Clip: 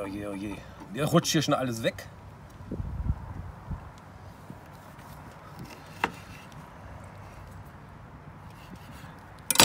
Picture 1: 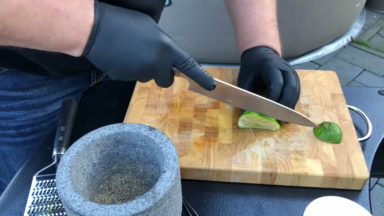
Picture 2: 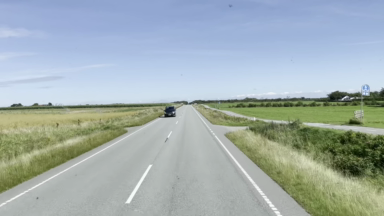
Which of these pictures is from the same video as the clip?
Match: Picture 1